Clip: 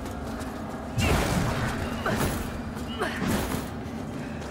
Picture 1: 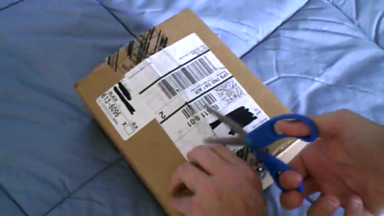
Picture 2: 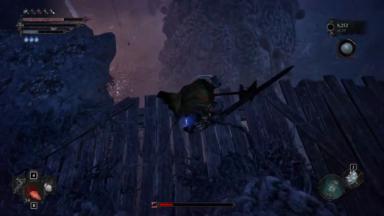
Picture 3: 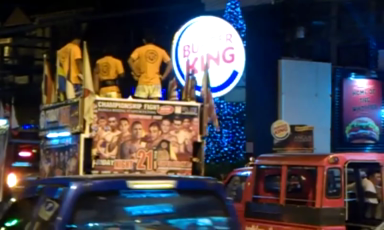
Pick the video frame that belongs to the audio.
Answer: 2